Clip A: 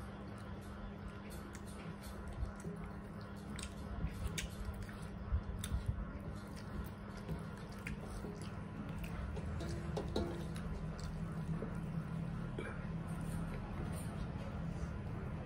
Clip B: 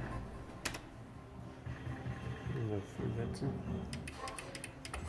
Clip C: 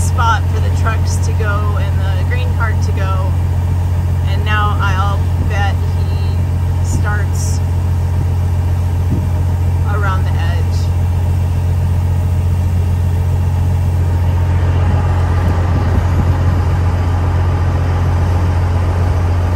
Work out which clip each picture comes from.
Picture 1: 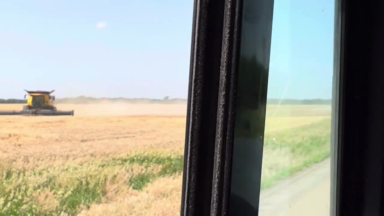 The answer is C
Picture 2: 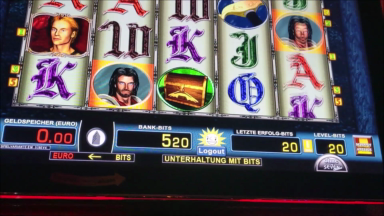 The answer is B